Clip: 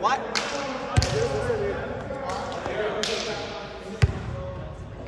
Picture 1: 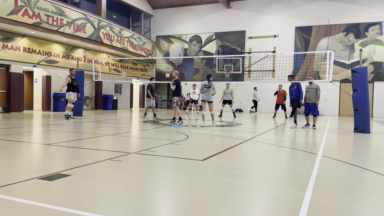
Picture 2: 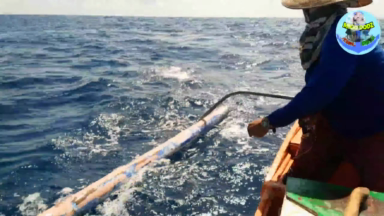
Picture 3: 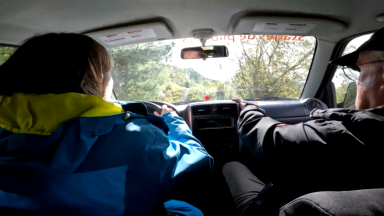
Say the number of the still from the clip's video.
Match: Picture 1